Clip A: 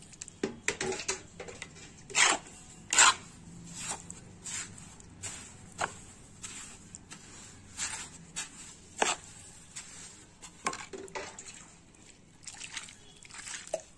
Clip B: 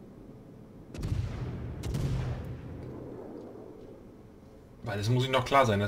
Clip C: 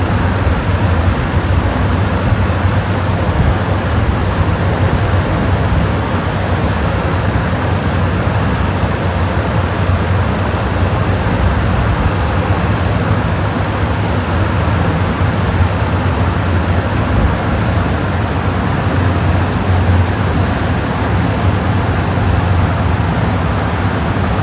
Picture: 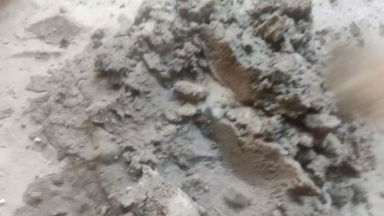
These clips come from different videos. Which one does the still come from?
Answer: A